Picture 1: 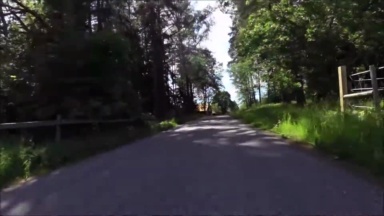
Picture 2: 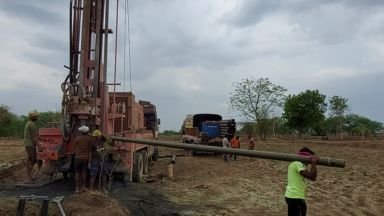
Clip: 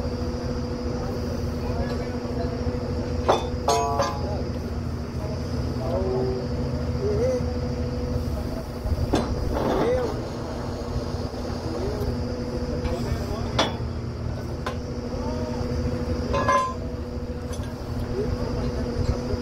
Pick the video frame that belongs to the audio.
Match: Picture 2